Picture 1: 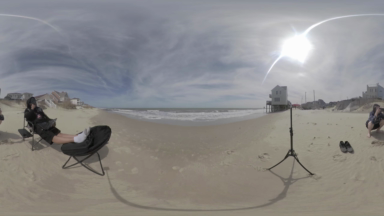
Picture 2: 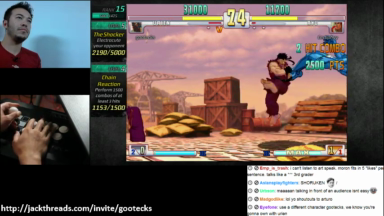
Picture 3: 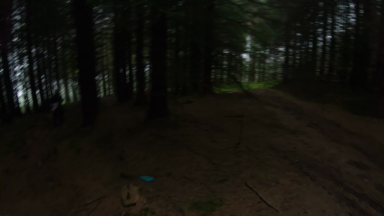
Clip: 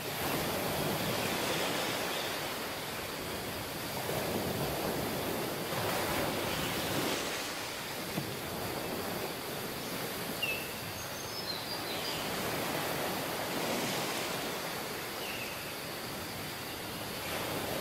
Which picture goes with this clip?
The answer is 1